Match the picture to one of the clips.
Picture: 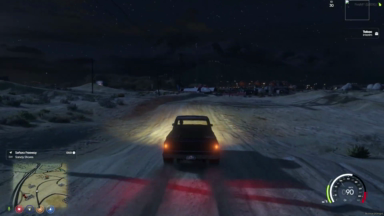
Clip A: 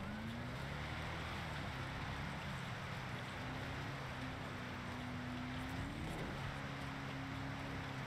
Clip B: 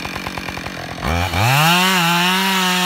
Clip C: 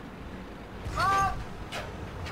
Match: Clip A